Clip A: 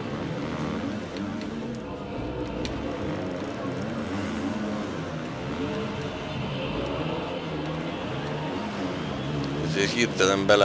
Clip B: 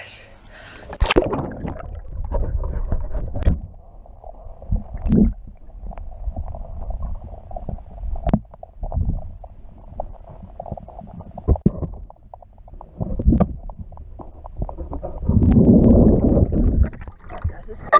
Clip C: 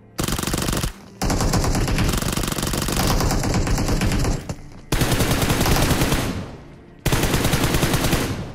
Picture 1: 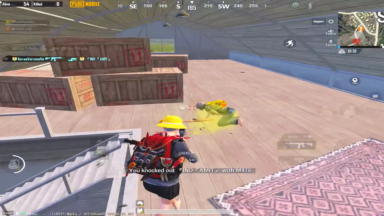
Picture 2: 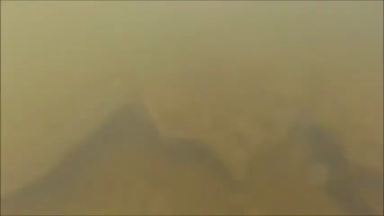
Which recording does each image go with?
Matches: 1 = C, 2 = B